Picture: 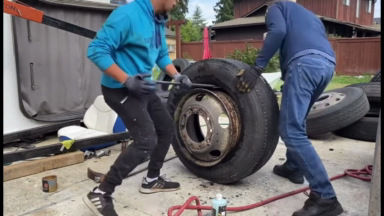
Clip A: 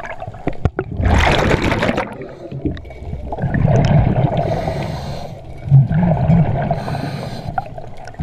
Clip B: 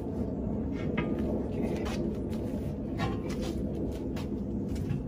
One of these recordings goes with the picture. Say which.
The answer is B